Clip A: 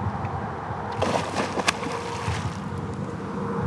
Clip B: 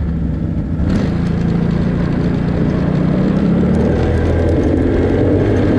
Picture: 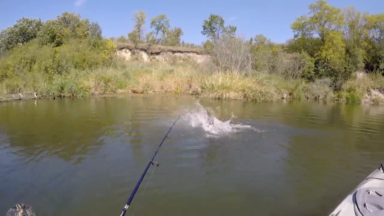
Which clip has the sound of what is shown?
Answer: A